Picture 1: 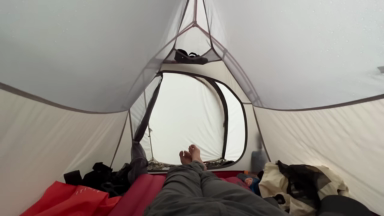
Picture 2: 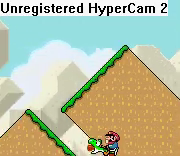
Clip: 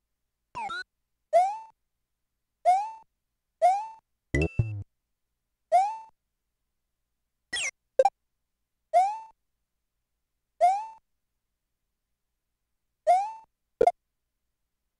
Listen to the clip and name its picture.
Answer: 2